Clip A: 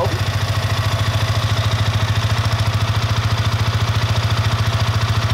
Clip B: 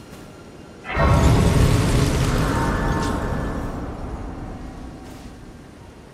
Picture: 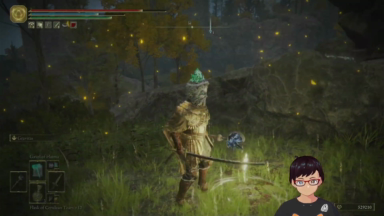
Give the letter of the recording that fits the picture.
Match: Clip B